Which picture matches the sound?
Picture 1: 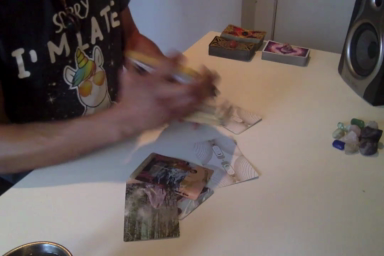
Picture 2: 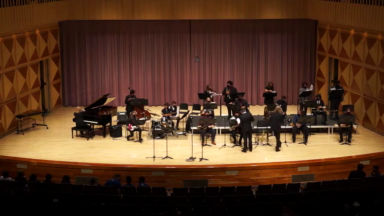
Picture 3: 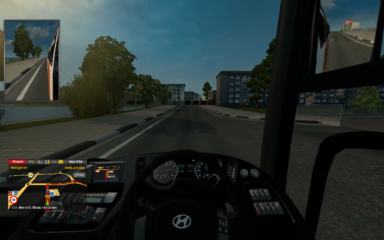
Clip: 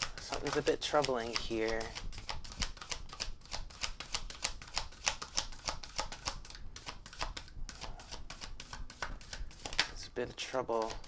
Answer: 1